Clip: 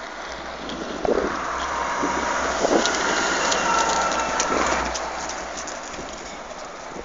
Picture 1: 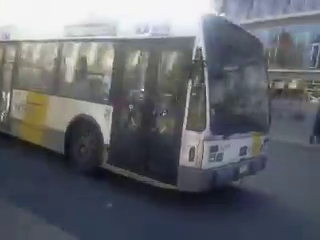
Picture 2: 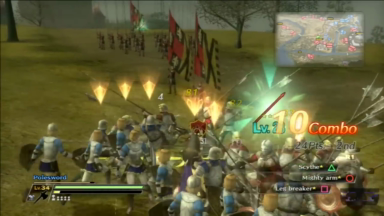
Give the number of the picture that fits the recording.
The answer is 1